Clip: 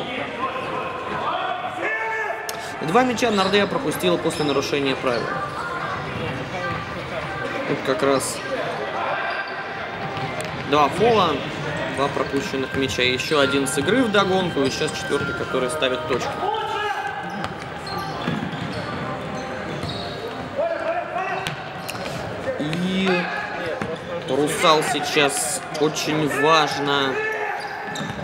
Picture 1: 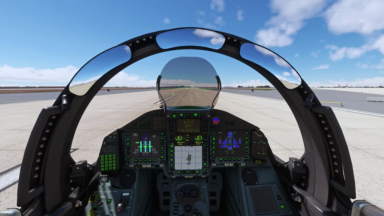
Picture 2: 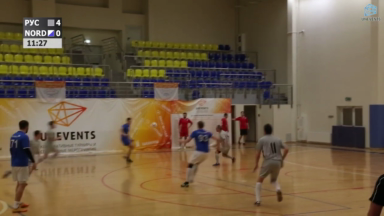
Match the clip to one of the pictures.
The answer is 2